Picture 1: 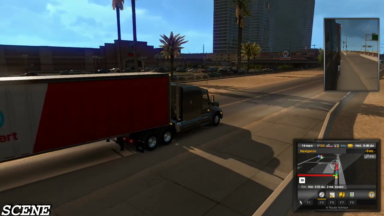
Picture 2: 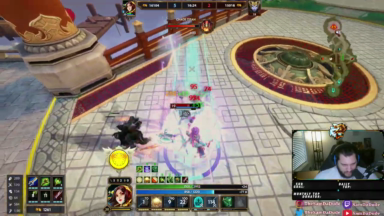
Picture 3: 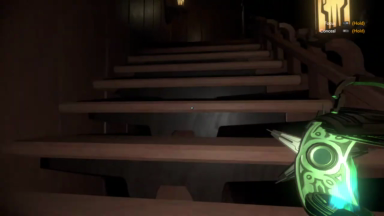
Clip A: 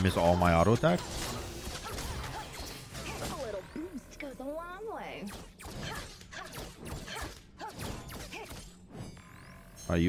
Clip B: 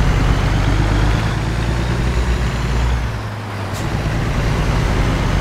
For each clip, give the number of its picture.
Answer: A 2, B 1